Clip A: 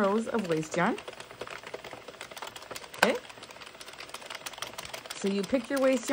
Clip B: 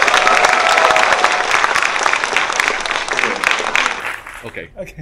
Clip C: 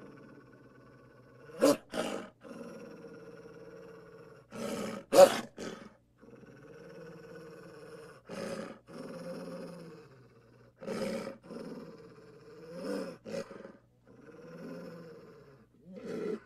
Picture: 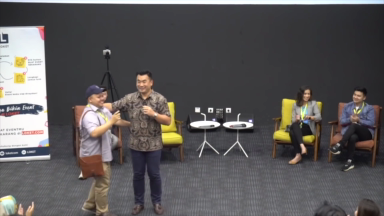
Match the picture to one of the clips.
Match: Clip B